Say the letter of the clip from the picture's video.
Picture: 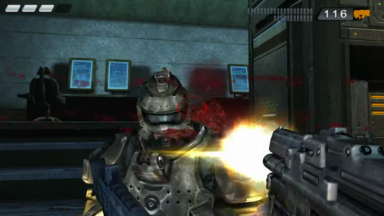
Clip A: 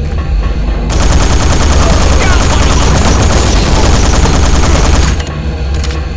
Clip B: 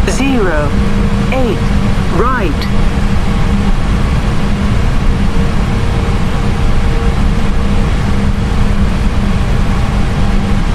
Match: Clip A